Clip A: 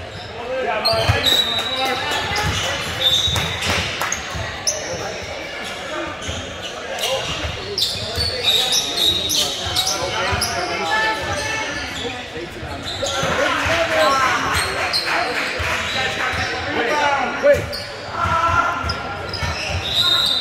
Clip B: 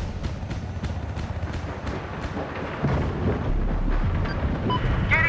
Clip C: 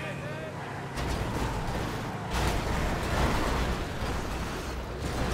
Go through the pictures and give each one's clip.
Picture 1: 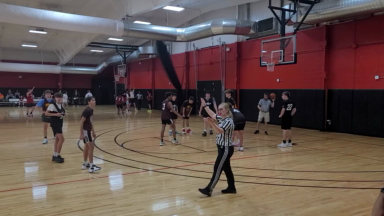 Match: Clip A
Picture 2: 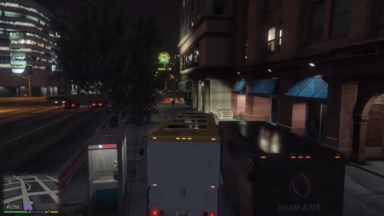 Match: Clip C